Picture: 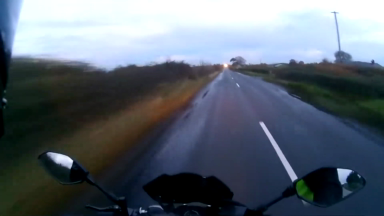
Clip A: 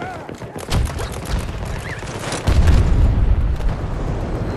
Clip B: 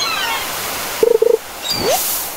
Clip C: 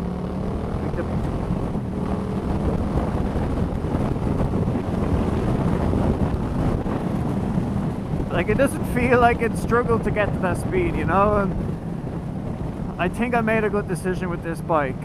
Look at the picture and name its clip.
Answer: C